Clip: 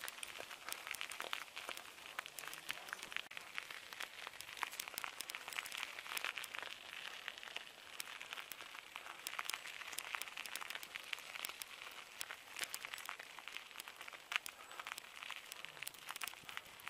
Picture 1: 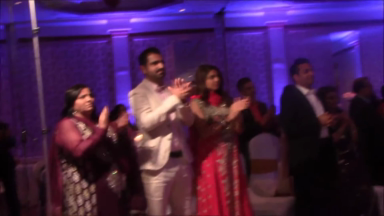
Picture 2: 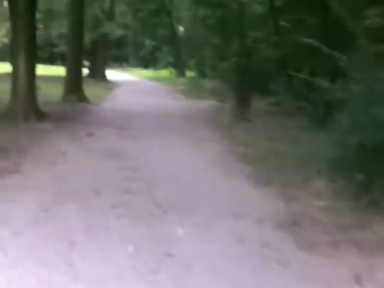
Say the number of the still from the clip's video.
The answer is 2